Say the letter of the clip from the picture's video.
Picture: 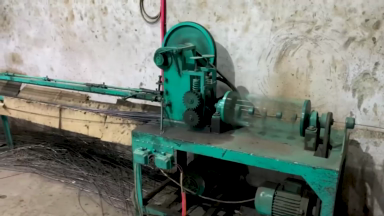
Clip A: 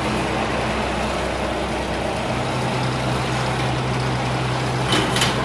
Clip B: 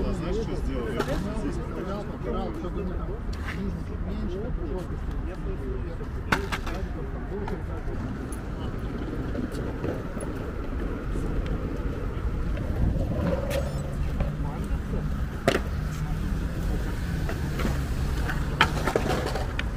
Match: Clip A